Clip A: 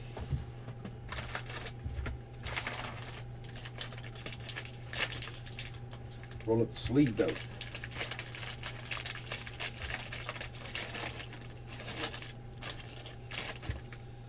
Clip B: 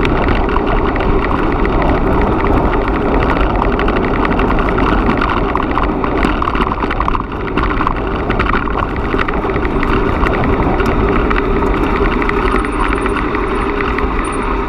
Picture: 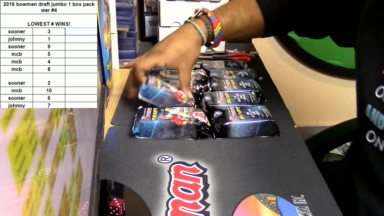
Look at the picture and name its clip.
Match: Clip A